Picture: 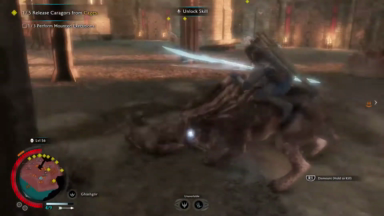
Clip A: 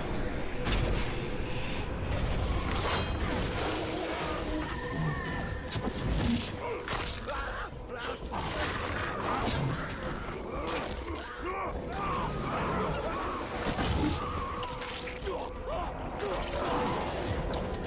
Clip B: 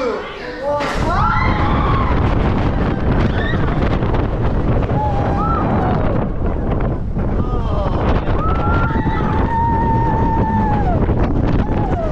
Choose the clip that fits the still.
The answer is A